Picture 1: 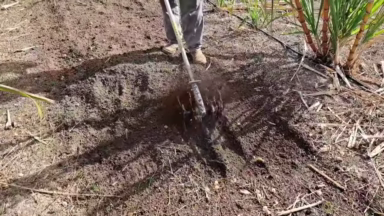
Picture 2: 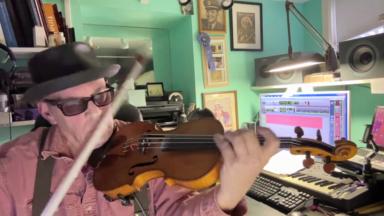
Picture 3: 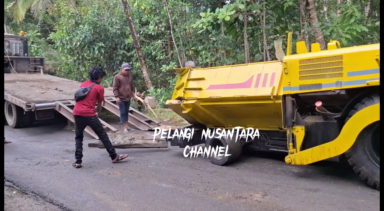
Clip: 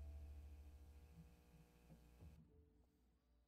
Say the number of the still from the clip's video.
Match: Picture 2